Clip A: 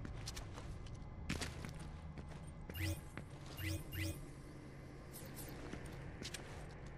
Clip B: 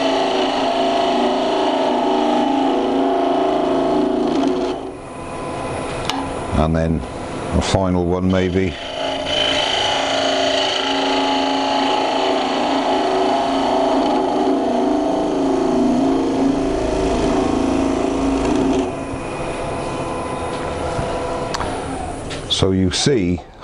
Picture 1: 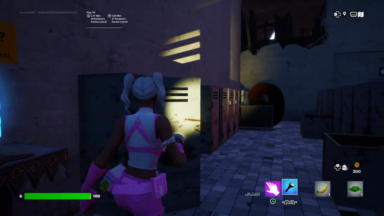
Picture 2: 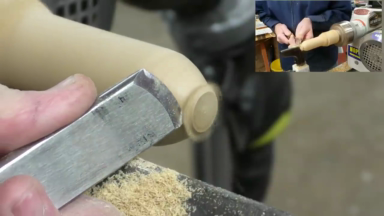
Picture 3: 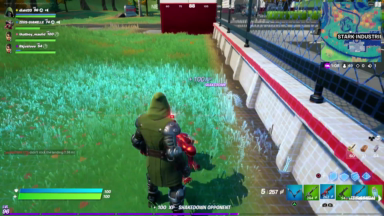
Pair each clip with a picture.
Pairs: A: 1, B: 2